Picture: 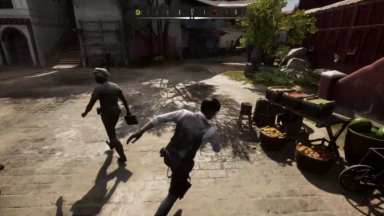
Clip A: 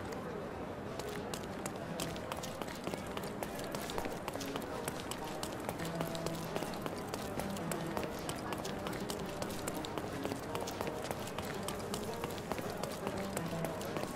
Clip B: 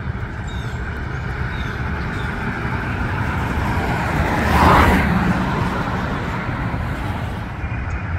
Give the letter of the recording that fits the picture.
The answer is A